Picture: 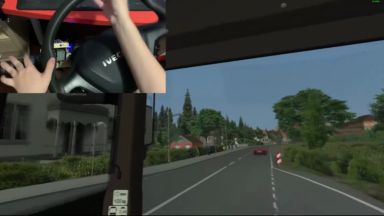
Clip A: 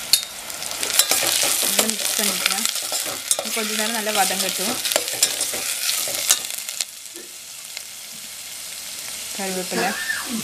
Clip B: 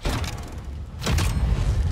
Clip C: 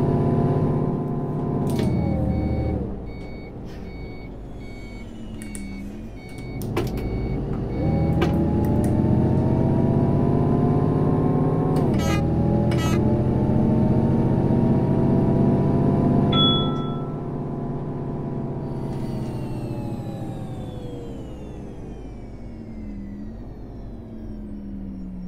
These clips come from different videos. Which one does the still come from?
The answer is C